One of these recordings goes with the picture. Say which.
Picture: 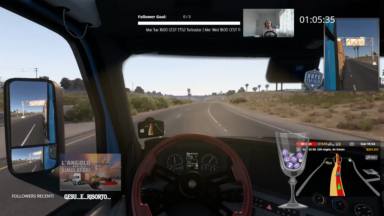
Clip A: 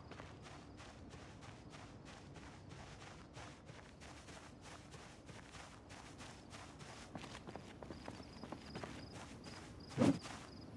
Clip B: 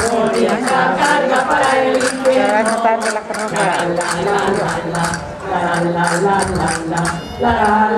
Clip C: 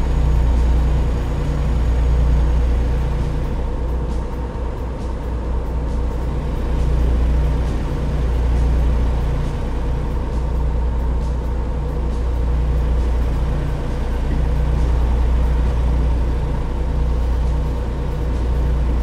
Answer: C